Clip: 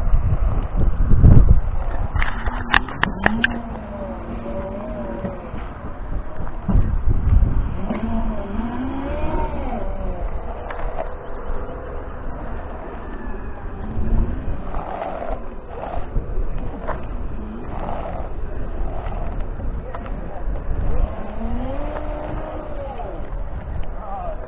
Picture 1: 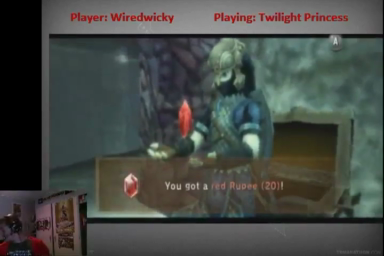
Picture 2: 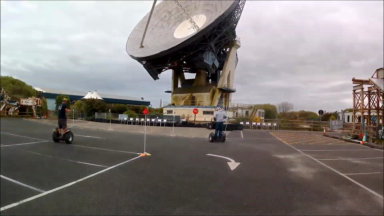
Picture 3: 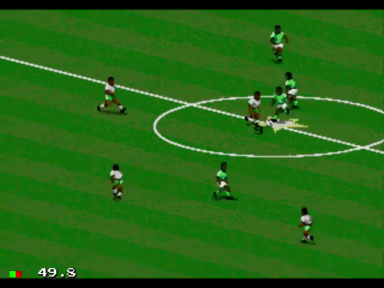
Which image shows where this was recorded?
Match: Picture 2